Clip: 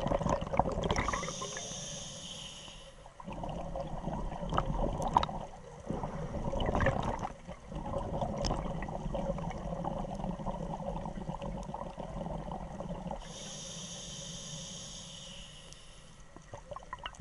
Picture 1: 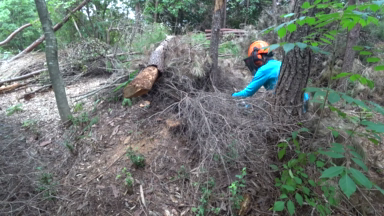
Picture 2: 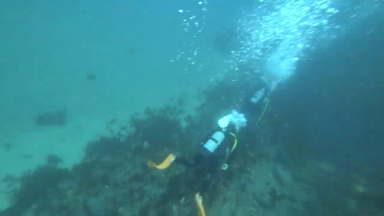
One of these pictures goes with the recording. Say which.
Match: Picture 2